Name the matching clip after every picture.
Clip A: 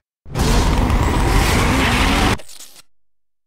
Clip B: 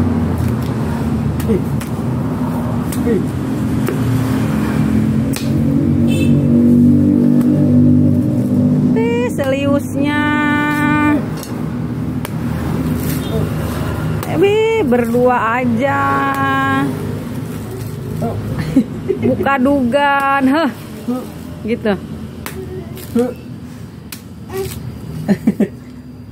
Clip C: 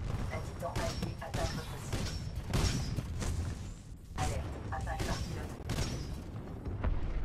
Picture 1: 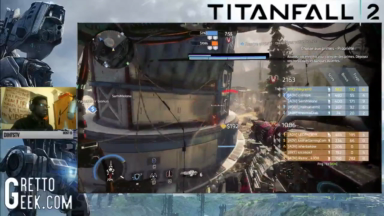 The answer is C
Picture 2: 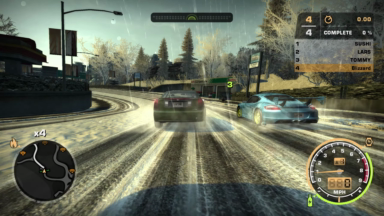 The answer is A